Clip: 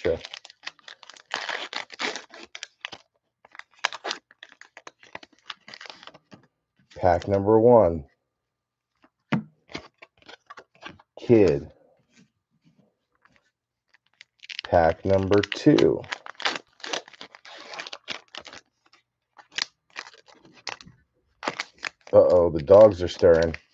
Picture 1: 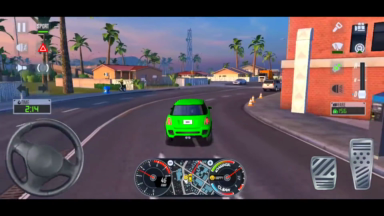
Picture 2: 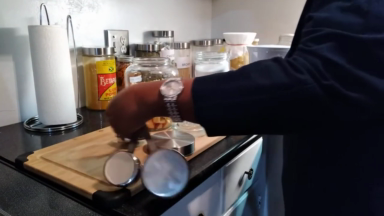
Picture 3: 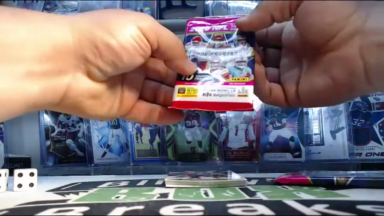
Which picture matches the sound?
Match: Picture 3